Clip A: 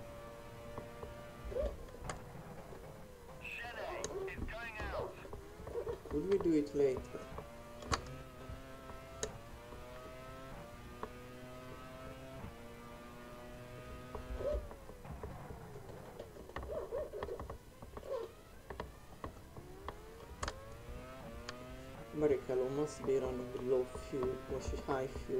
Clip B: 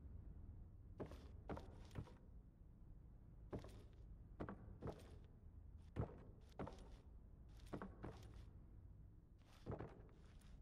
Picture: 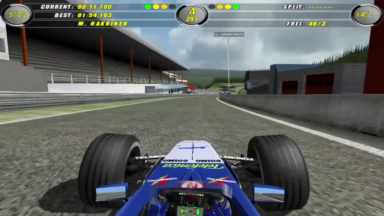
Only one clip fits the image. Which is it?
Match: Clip A